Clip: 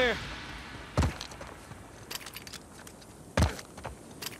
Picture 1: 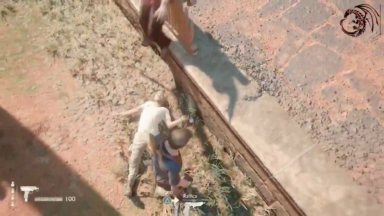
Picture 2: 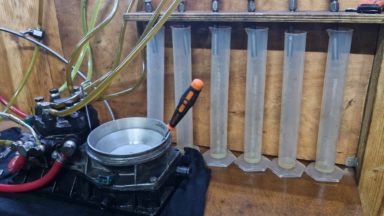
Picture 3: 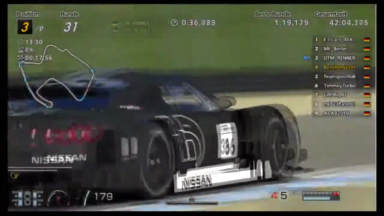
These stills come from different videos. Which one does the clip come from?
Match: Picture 1